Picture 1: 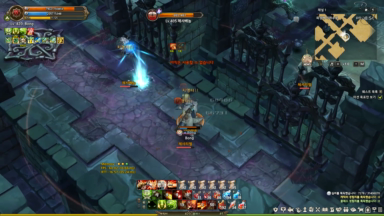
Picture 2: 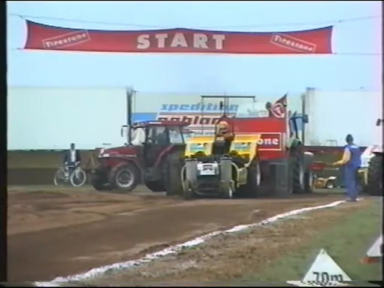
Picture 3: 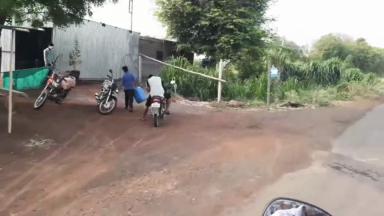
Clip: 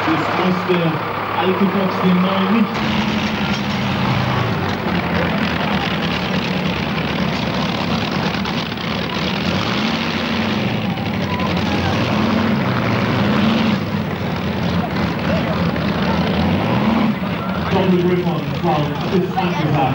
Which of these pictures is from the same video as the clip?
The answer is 2